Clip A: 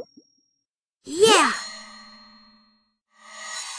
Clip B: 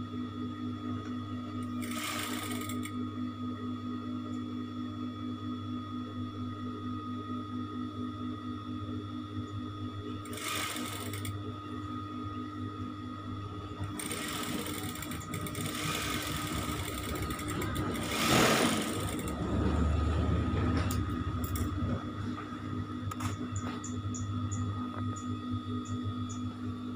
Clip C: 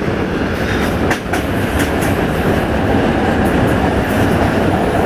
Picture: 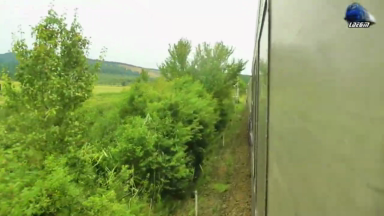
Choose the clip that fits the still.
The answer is C